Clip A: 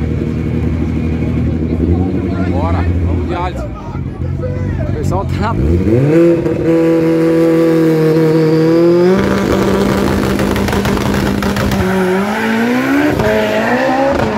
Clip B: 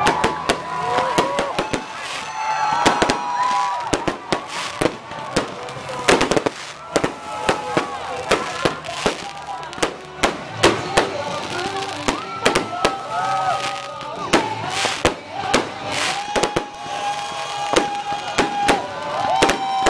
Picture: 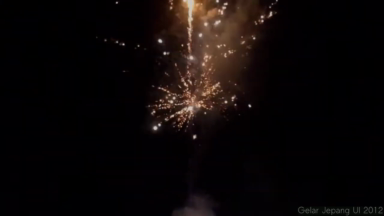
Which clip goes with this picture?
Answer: B